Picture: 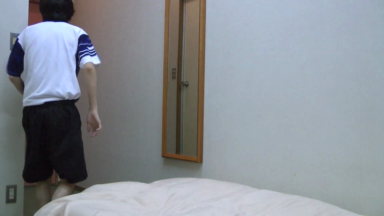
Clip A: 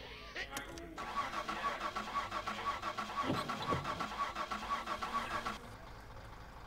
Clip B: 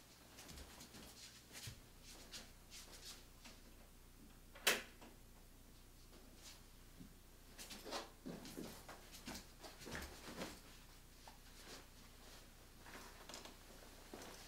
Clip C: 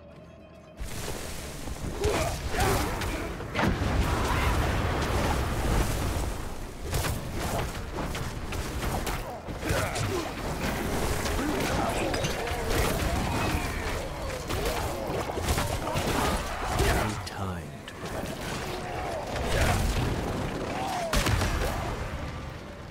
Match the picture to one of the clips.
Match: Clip B